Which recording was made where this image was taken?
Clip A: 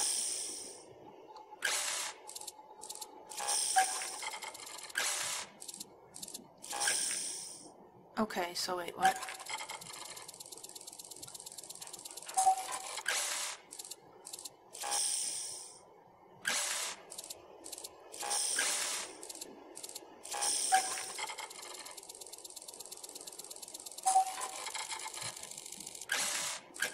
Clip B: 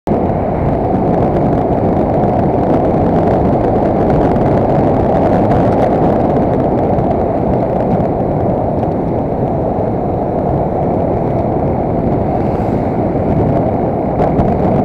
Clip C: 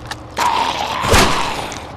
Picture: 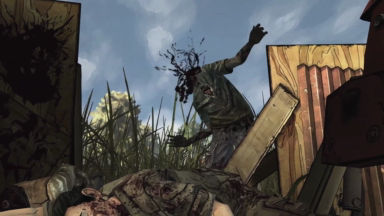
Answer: C